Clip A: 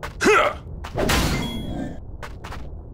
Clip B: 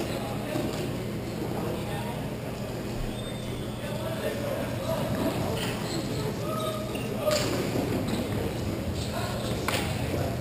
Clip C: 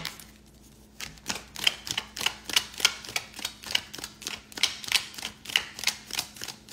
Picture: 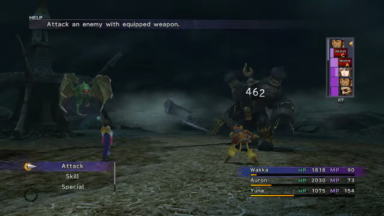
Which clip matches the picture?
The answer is A